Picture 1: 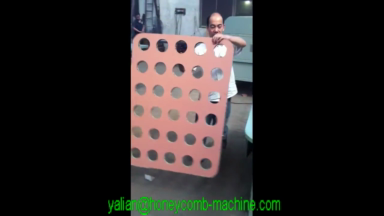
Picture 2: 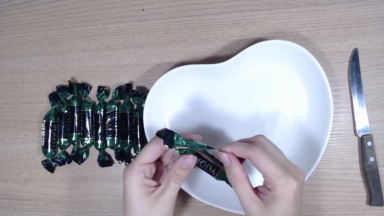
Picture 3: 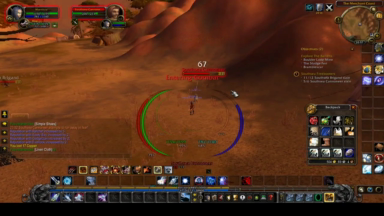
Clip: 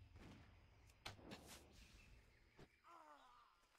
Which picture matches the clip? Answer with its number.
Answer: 3